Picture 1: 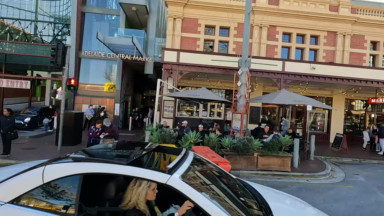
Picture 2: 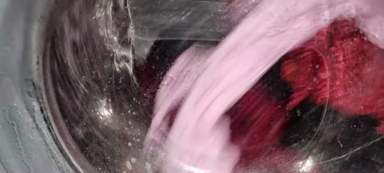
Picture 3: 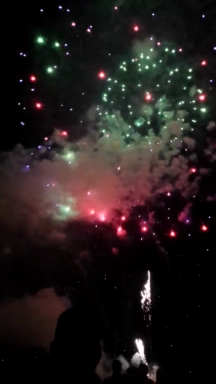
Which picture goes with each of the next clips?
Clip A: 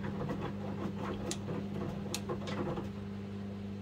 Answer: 2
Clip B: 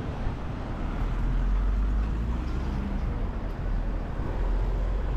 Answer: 1